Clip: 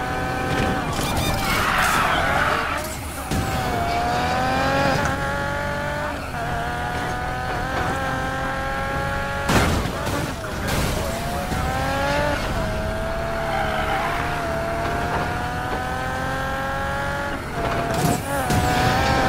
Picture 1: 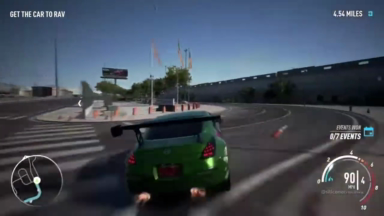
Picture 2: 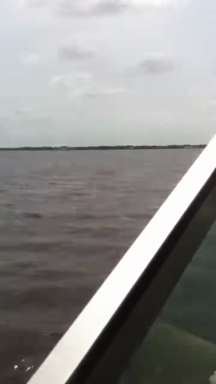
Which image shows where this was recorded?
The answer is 1